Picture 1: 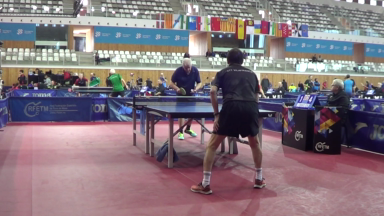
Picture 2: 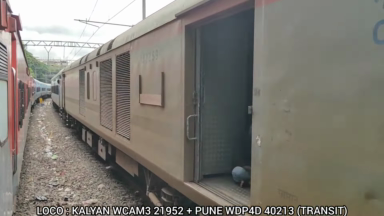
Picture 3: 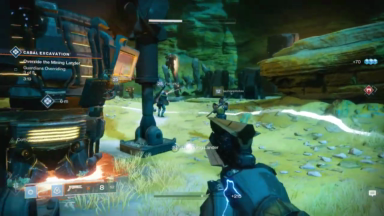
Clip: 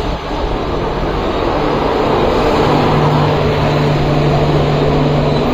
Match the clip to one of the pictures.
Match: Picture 2